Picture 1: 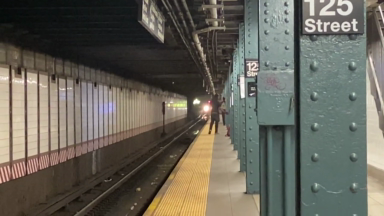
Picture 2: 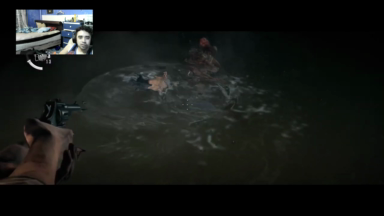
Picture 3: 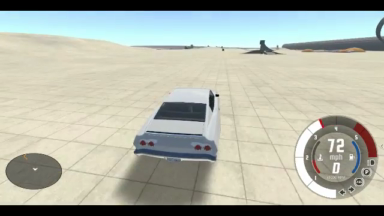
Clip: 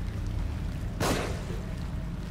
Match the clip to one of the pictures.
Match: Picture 2